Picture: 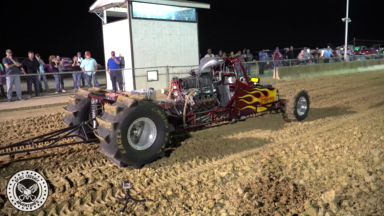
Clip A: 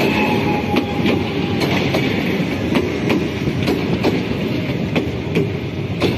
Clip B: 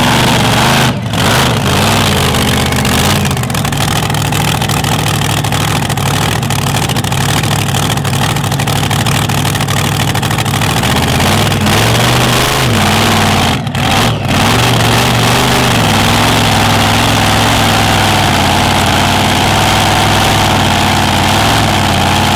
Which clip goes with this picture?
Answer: B